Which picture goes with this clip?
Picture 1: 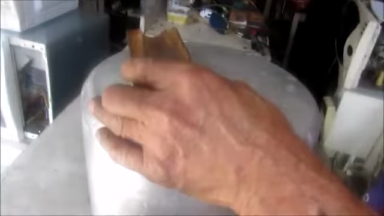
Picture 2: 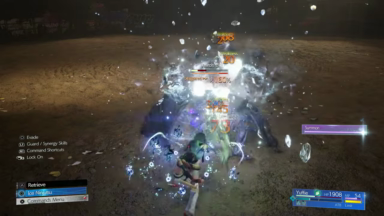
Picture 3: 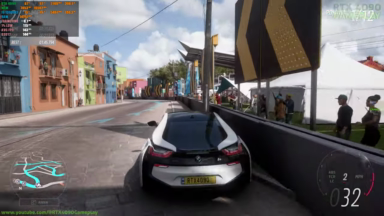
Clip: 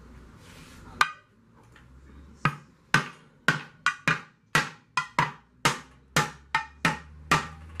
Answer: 1